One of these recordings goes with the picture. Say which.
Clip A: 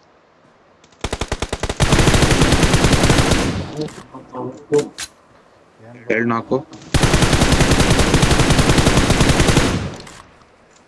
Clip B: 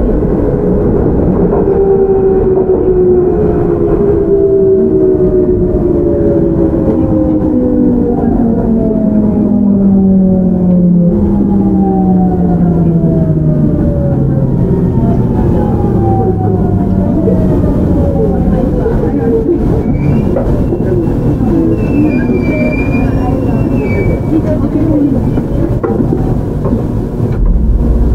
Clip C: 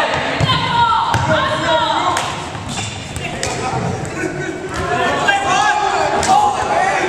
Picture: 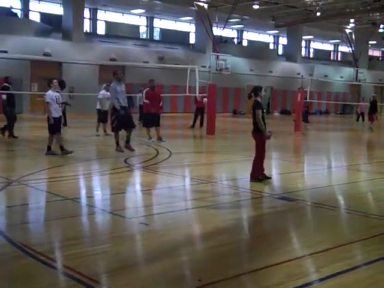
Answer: C